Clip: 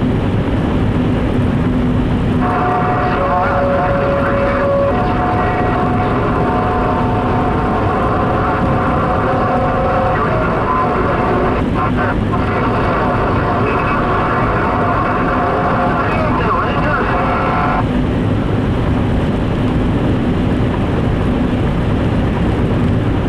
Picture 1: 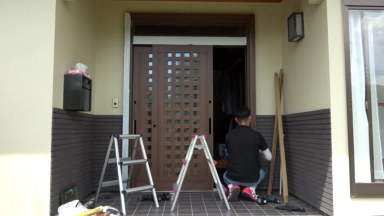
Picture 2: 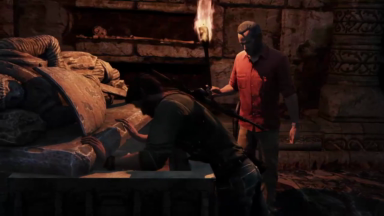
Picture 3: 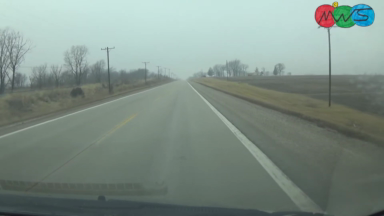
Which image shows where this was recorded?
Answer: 3